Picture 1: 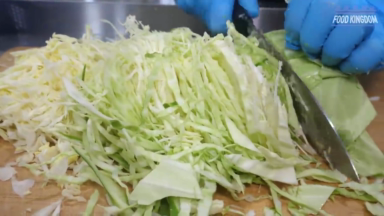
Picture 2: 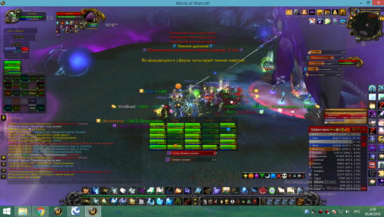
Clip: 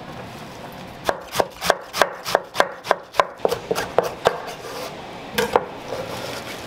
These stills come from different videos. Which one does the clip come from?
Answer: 1